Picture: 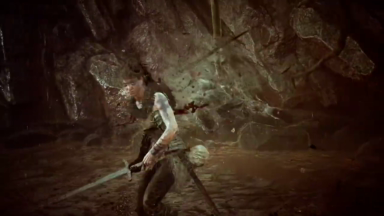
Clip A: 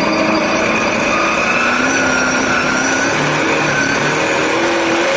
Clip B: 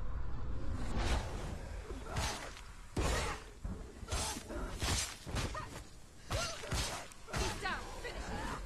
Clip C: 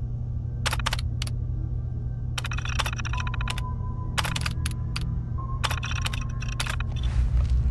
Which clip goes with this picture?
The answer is B